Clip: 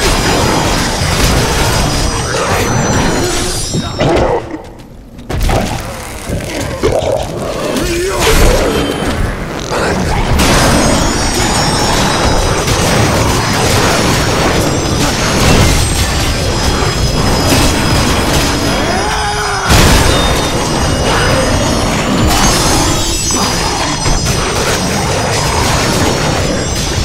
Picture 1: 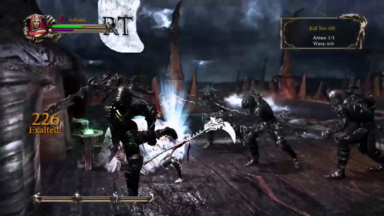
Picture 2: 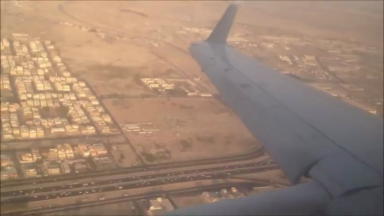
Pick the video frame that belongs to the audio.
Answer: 1